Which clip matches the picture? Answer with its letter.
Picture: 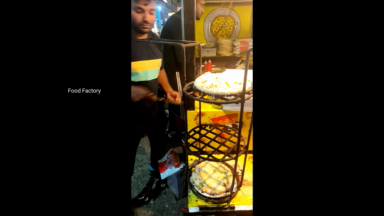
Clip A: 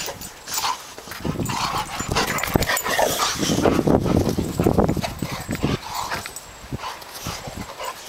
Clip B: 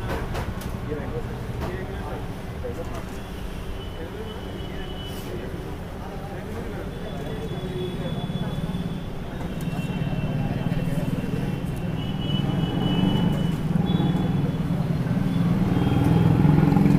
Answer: B